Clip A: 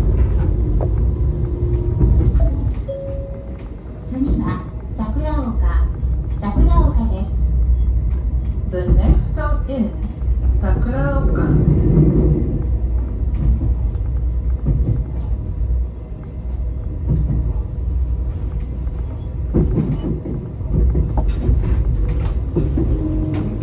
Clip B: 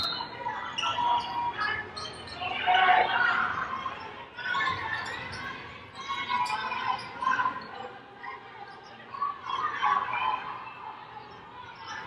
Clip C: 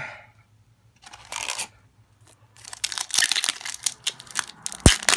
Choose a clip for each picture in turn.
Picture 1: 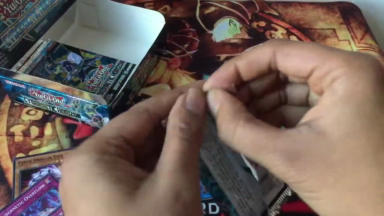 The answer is C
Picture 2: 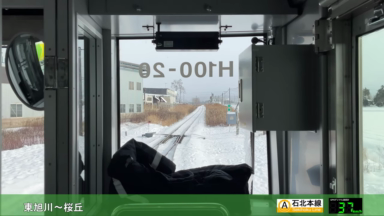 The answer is A